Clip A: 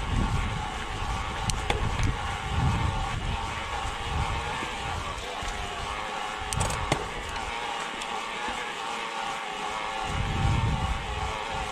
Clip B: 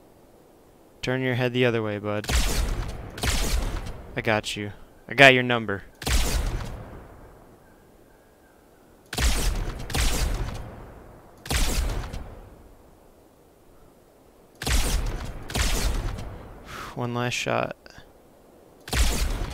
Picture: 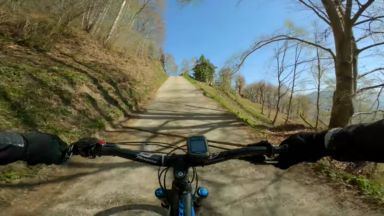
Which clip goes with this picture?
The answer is A